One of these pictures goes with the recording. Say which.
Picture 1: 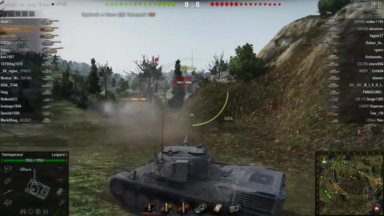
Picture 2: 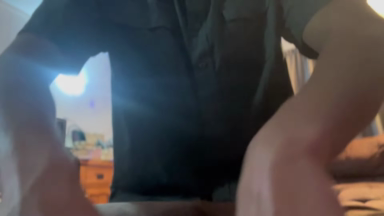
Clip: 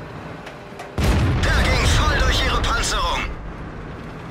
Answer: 1